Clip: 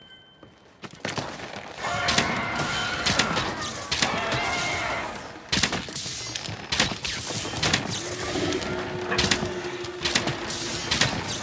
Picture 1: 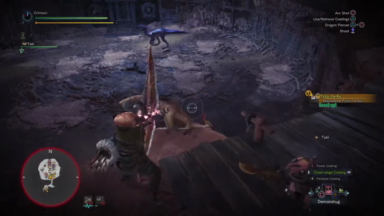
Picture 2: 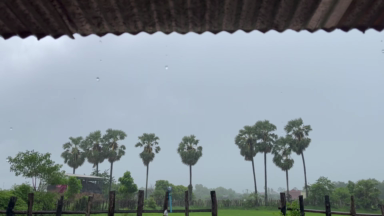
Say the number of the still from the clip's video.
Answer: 1